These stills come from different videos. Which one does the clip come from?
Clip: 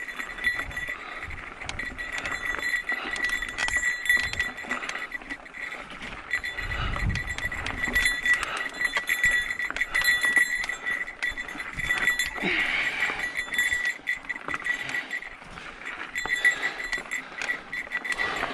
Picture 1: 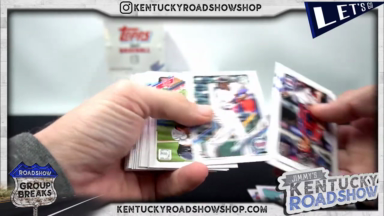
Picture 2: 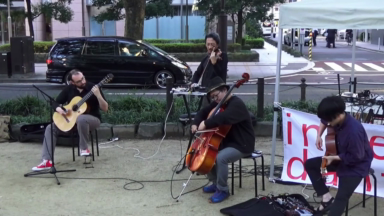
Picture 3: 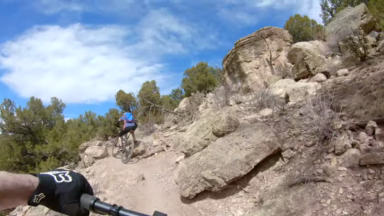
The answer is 3